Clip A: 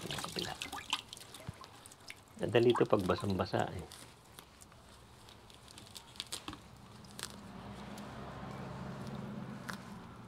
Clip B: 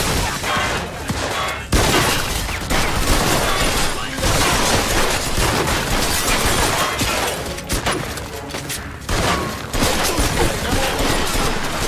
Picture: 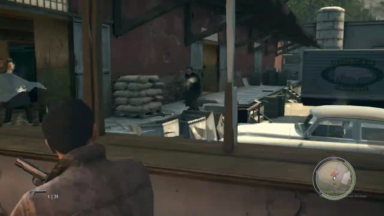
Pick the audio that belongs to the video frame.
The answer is B